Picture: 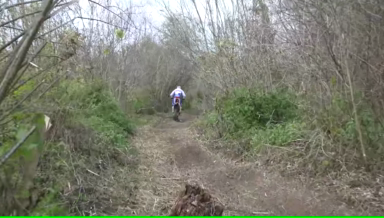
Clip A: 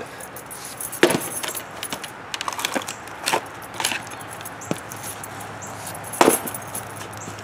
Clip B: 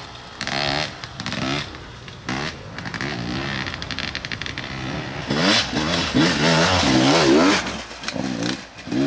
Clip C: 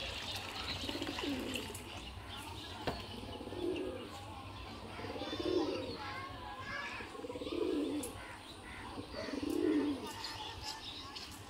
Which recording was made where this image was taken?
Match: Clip B